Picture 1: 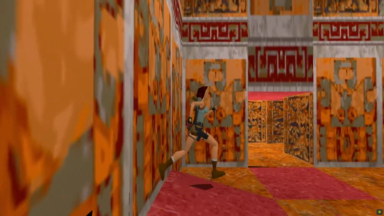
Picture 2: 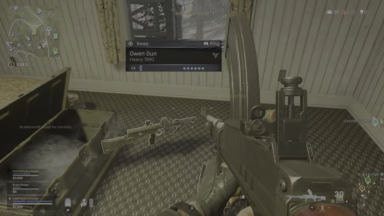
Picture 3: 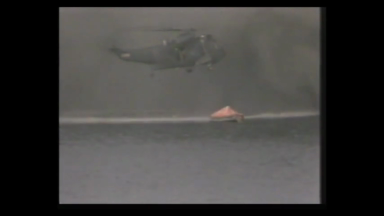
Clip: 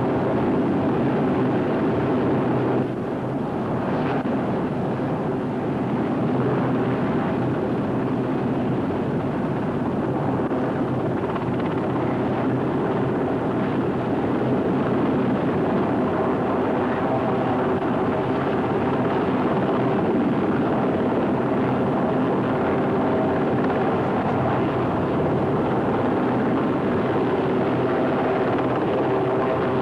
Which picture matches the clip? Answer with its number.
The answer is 3